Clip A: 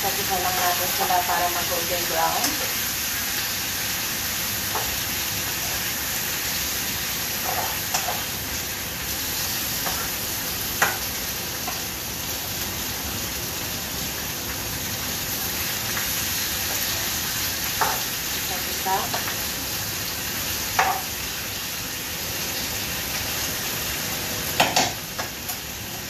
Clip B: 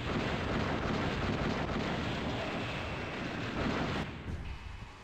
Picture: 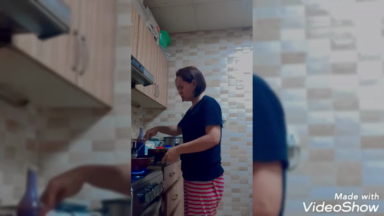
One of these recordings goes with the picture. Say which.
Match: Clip A